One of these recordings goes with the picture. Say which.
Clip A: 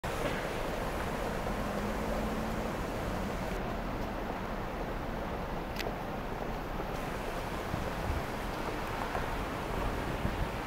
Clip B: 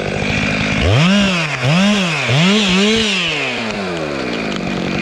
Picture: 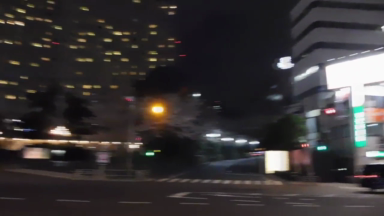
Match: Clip A